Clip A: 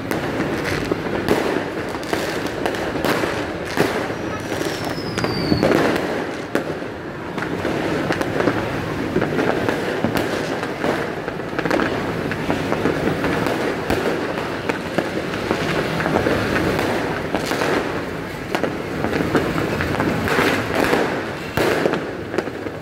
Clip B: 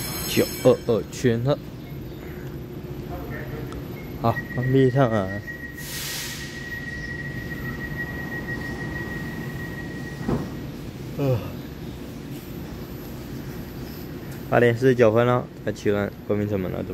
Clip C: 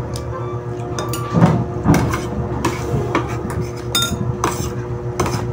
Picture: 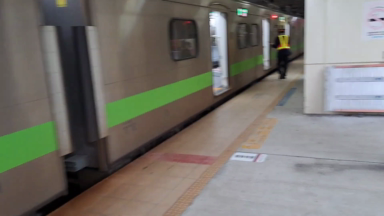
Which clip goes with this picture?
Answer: B